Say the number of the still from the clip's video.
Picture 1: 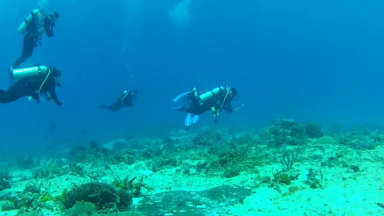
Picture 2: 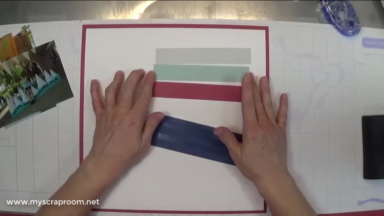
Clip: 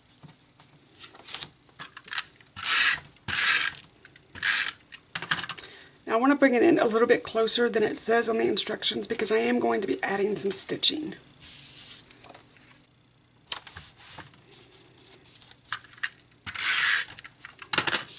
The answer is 2